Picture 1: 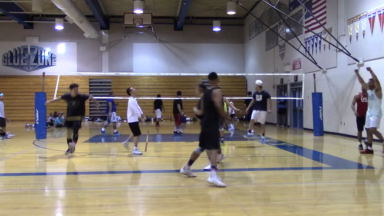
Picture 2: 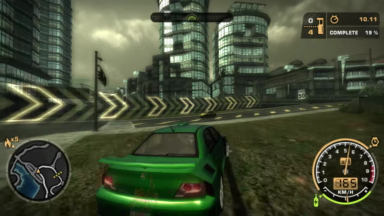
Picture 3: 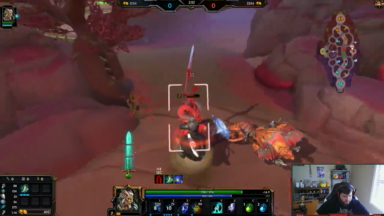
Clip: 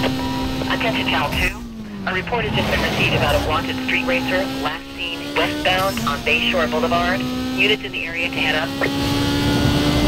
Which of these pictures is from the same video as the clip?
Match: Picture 2